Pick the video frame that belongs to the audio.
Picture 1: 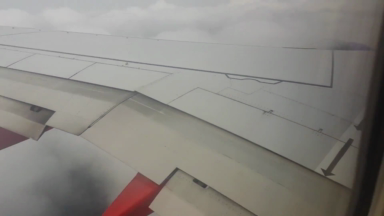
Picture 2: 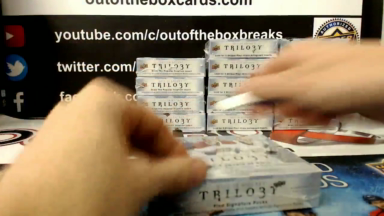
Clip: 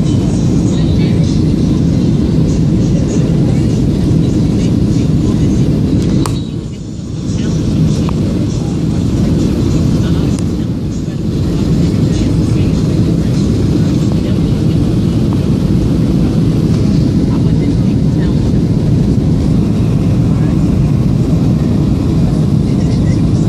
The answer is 1